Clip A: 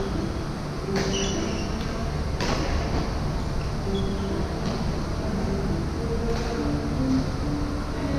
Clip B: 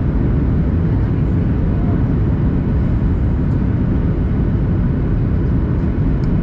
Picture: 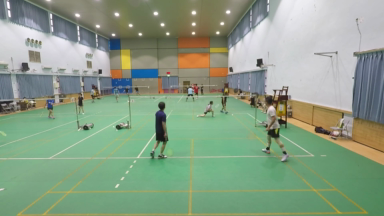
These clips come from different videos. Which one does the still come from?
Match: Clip A